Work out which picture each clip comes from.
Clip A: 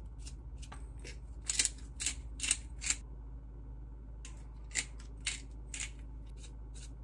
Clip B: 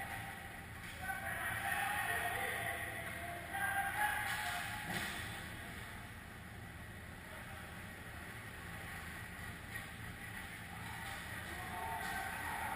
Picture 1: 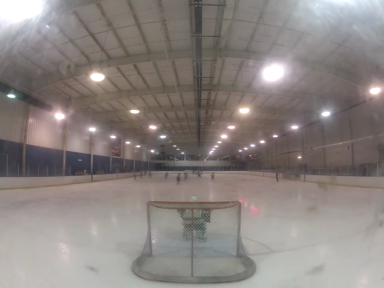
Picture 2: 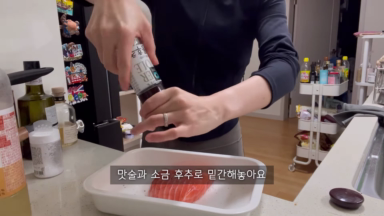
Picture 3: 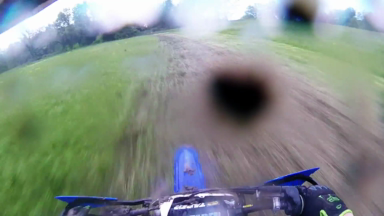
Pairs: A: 2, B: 1